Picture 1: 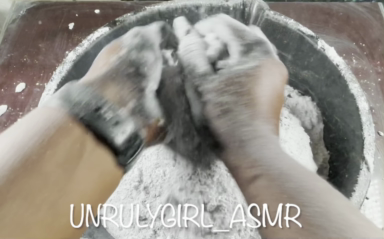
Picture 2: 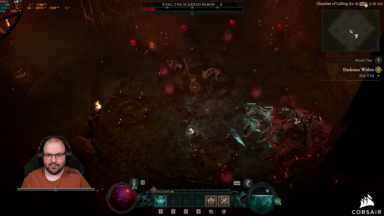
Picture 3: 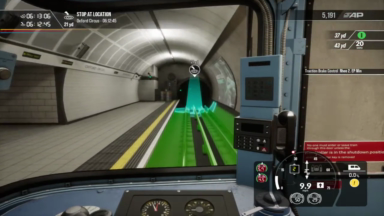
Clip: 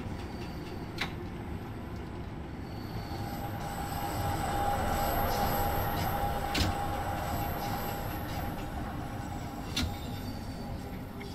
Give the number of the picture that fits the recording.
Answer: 3